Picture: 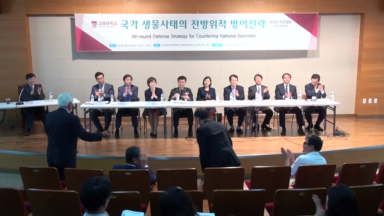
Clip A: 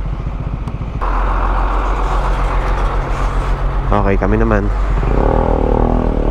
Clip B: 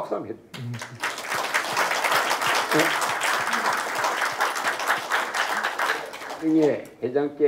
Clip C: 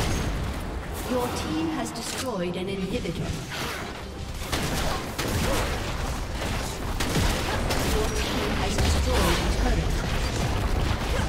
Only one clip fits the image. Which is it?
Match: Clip B